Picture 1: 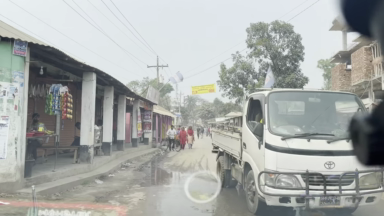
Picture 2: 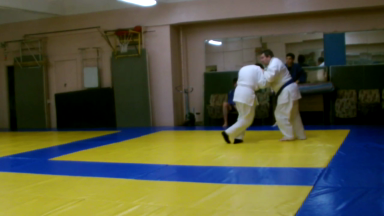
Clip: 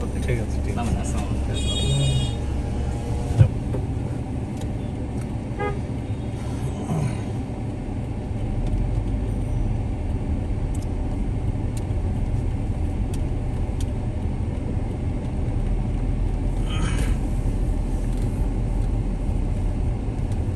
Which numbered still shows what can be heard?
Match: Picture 1